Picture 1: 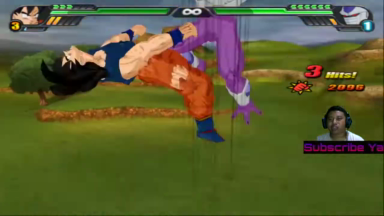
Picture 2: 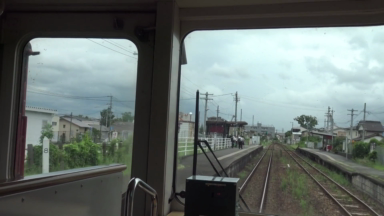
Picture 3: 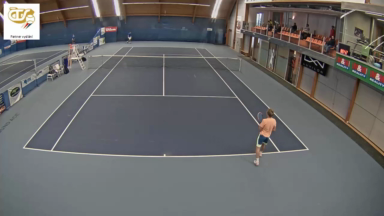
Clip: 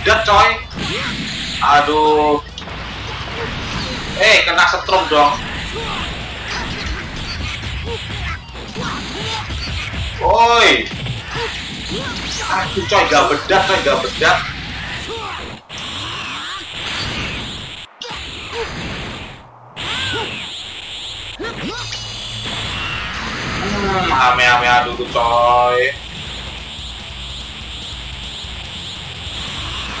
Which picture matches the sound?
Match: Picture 1